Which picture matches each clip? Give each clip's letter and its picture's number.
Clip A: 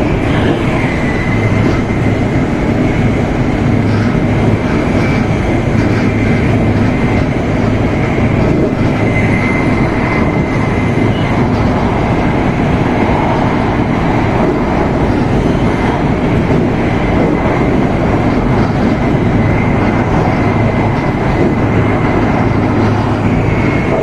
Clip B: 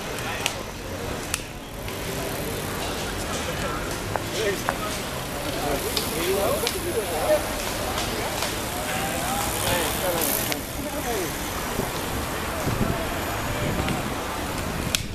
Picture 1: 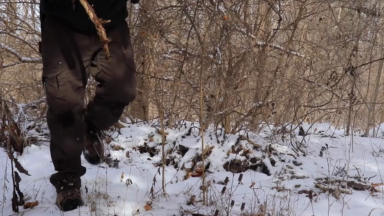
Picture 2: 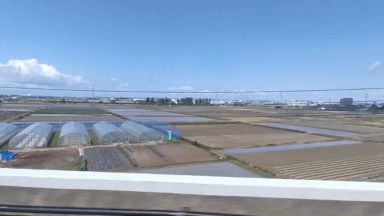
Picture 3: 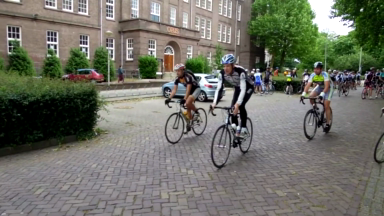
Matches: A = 2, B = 3